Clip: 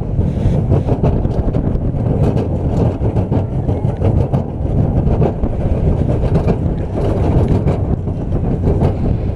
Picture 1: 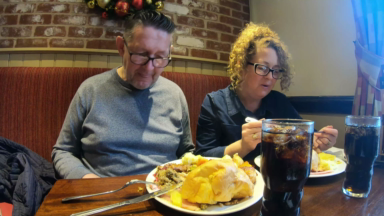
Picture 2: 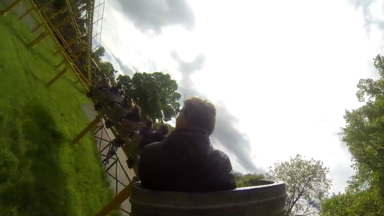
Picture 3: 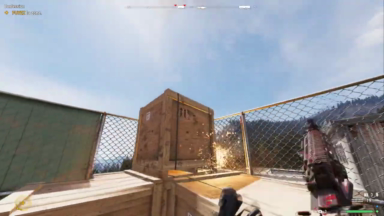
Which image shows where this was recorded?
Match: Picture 2